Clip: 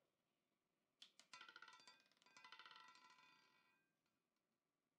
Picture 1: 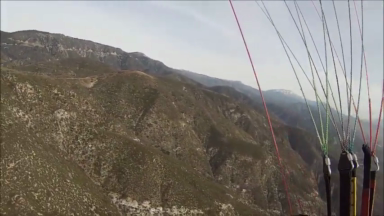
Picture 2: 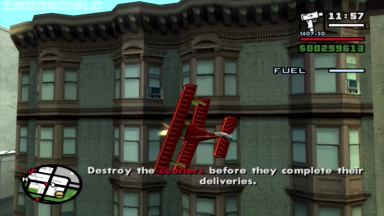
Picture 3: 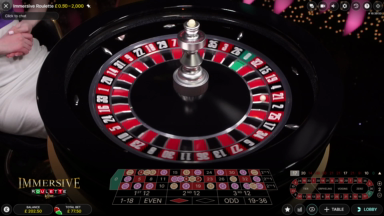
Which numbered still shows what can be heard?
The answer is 3